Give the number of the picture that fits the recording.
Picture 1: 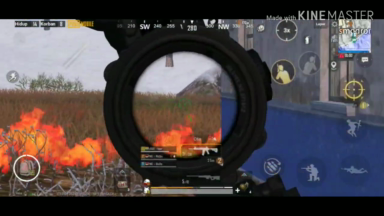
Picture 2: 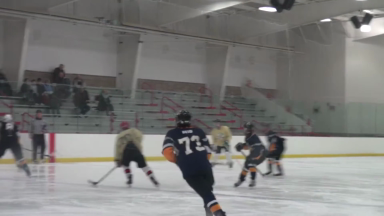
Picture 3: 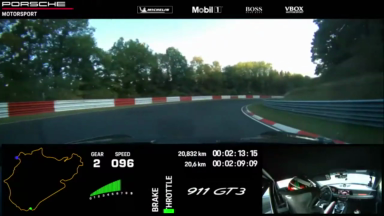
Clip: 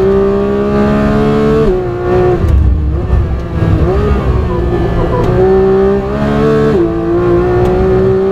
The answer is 3